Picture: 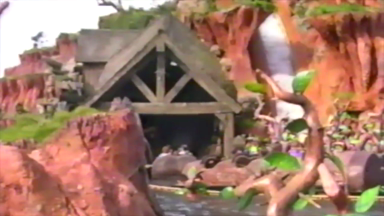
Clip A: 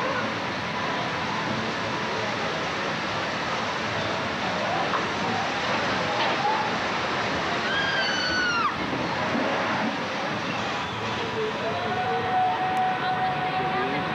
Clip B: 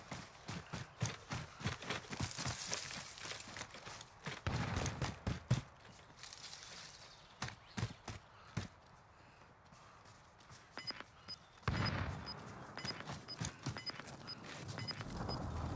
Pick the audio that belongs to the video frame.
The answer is A